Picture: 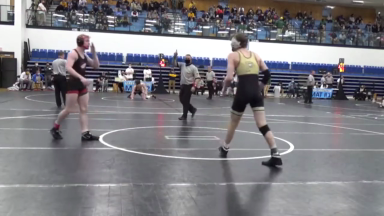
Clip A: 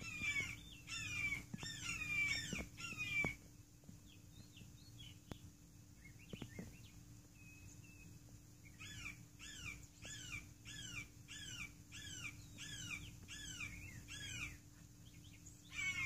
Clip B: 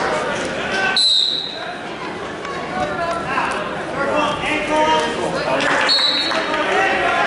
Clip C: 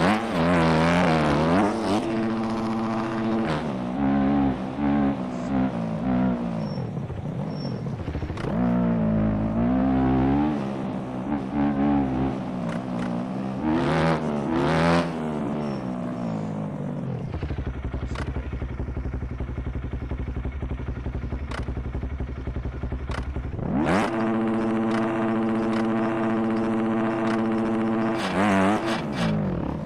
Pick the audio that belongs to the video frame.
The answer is B